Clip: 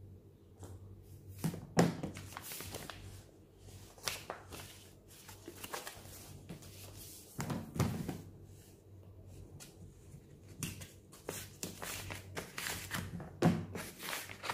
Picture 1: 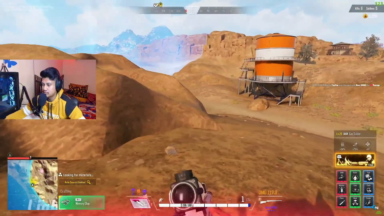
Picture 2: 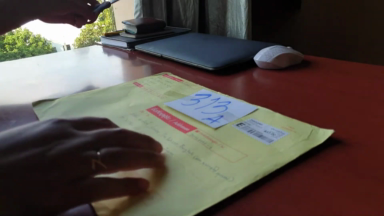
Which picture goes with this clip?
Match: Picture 2